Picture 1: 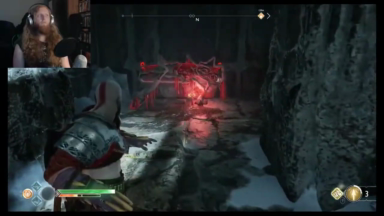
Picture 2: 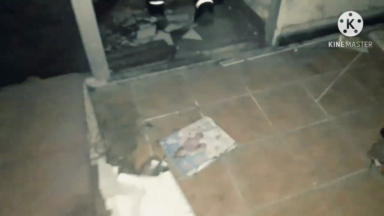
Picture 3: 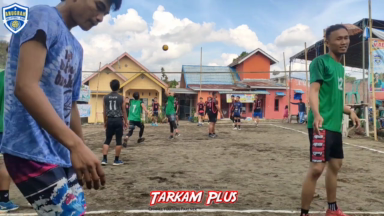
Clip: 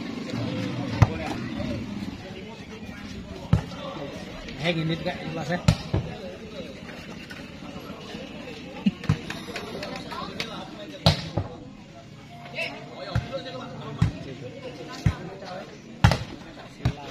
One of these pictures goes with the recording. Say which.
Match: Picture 3